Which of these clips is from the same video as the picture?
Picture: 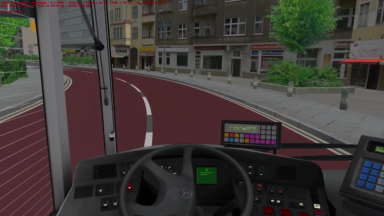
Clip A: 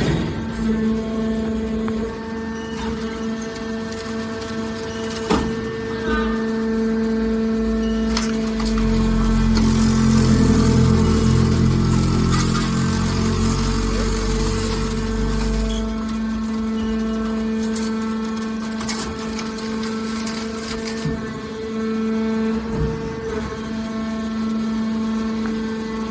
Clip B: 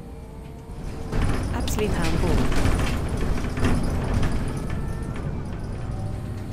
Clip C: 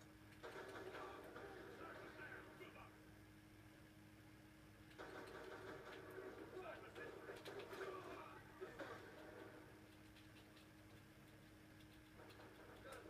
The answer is B